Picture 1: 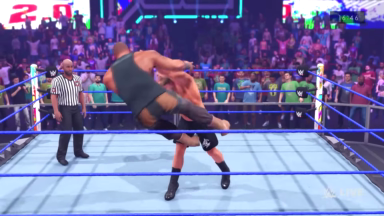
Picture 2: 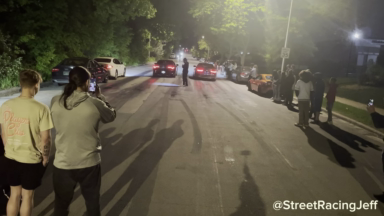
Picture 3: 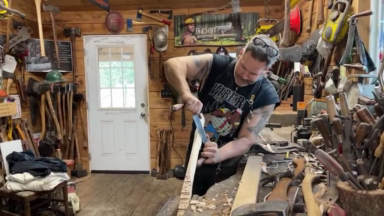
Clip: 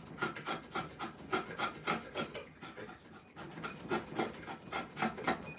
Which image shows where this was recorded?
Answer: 3